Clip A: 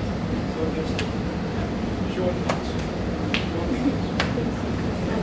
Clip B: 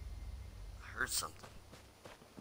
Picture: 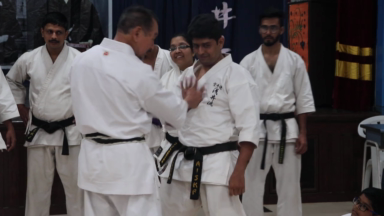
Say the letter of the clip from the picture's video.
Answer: A